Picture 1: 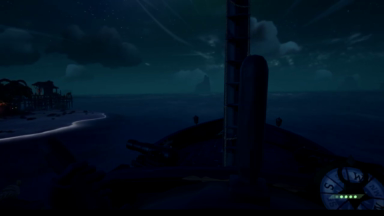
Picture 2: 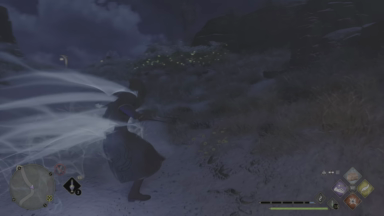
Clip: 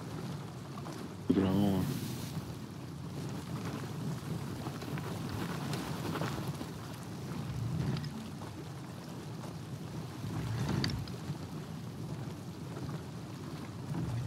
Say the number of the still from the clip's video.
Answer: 1